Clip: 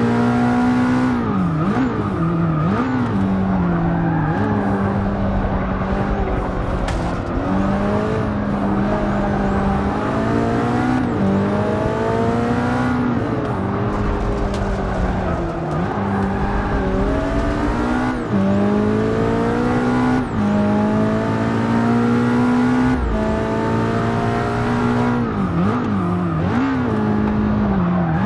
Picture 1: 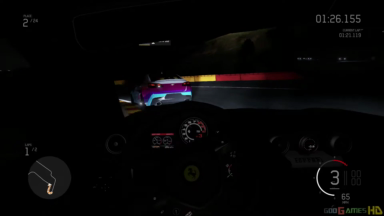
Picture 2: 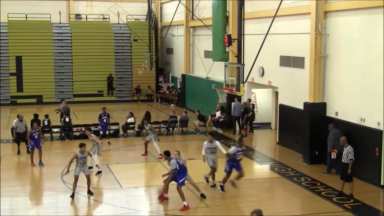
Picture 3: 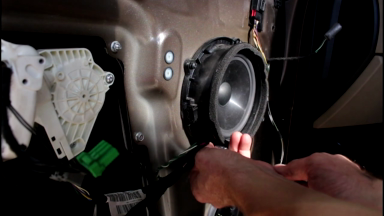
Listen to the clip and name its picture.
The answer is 1